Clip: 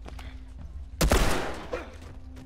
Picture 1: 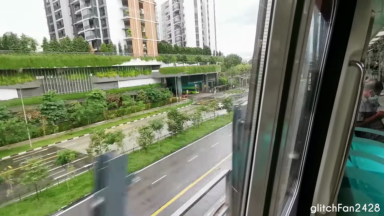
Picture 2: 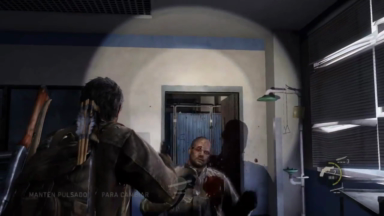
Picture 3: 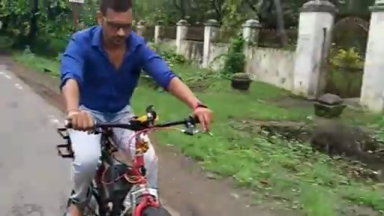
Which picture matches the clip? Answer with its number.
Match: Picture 2